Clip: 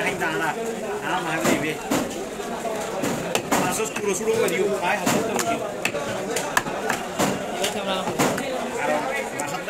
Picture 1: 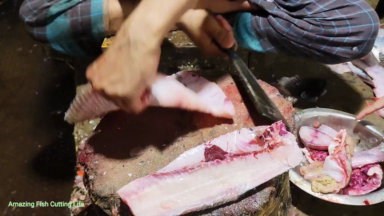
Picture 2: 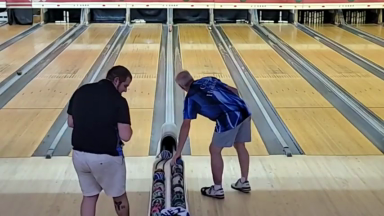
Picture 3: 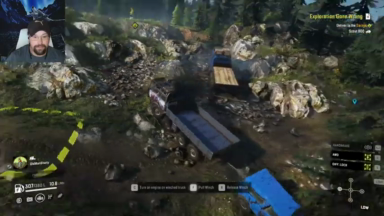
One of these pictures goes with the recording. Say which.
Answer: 1